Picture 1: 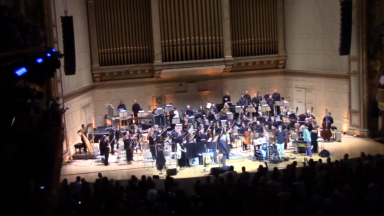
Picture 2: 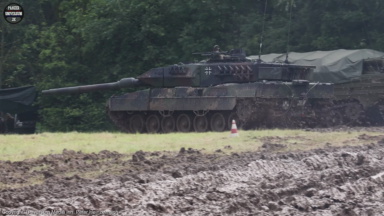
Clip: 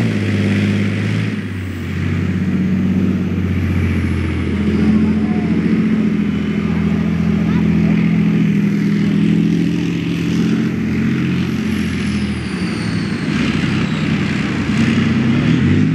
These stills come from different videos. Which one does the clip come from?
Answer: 2